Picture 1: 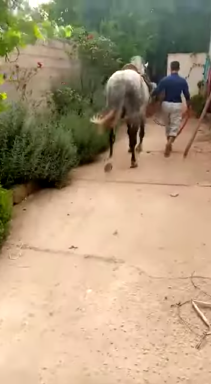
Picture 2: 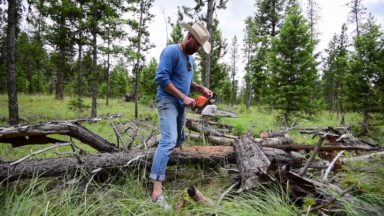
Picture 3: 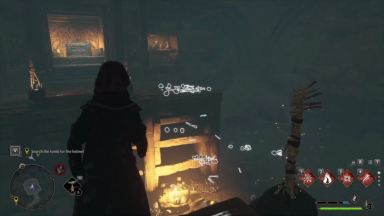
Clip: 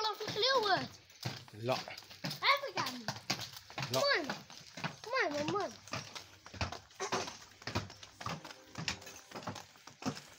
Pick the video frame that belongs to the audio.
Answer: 1